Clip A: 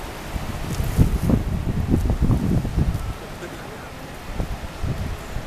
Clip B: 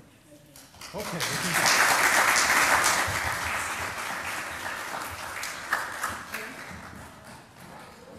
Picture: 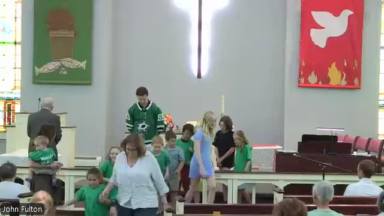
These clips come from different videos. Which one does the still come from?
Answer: B